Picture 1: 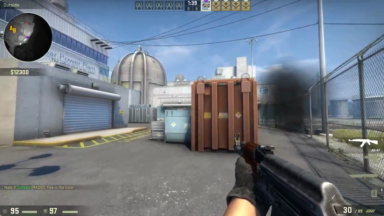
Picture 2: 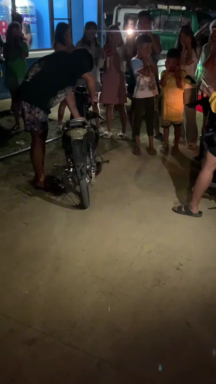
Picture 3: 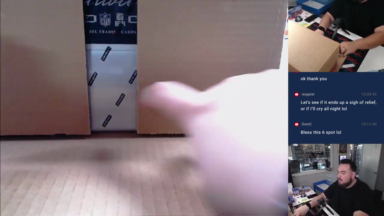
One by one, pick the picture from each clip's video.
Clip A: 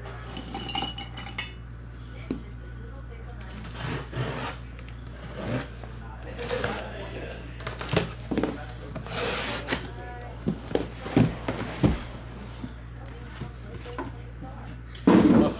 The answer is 3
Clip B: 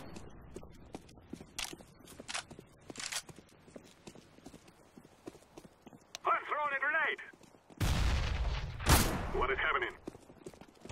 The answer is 1